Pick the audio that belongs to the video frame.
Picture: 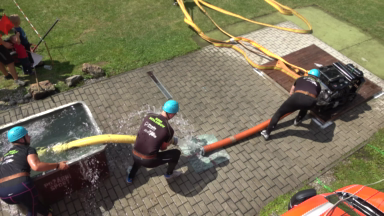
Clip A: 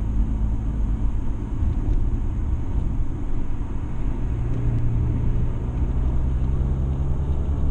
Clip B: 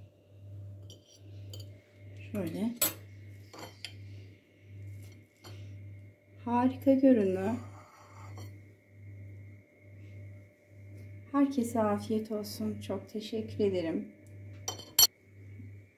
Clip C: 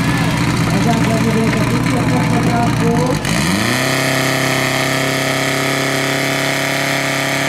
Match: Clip C